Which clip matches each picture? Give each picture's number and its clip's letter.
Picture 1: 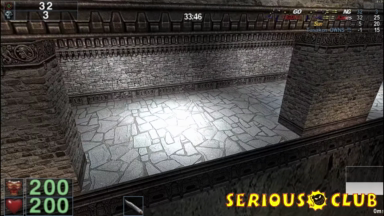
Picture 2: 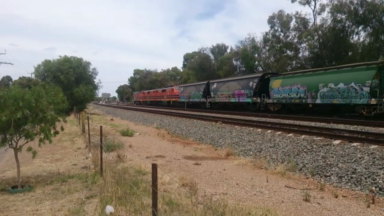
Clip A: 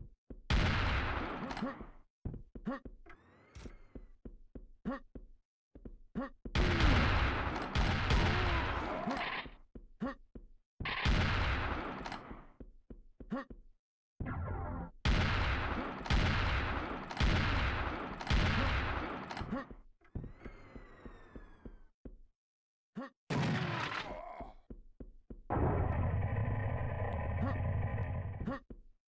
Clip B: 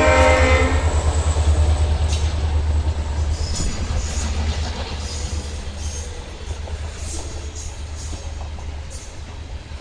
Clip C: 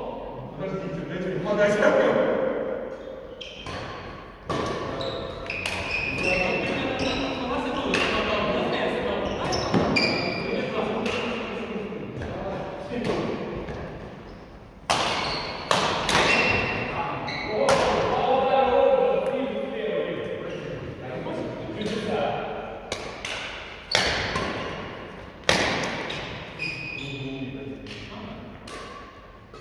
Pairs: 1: A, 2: B